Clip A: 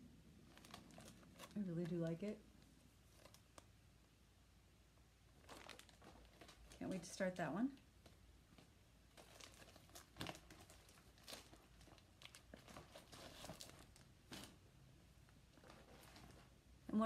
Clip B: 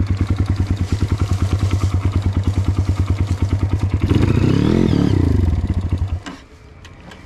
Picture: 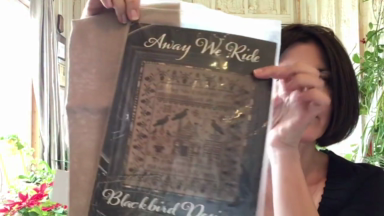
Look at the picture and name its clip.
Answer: A